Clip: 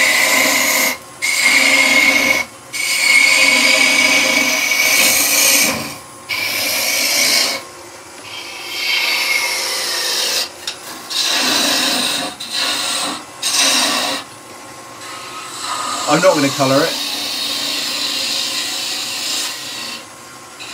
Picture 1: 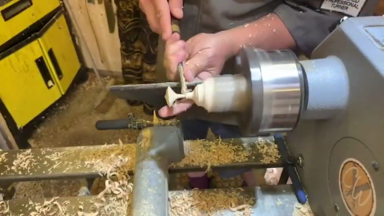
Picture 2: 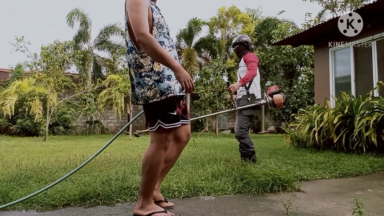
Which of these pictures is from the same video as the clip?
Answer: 1